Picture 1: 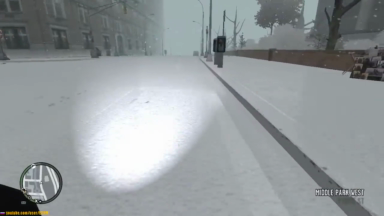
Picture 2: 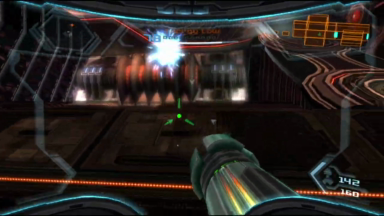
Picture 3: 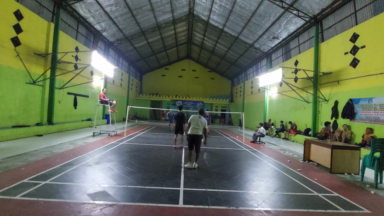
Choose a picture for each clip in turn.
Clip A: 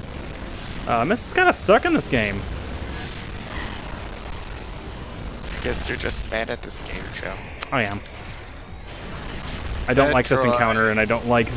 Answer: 2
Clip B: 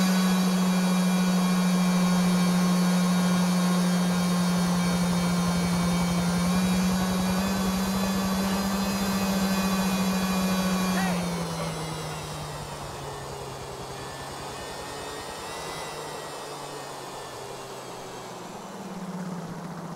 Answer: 1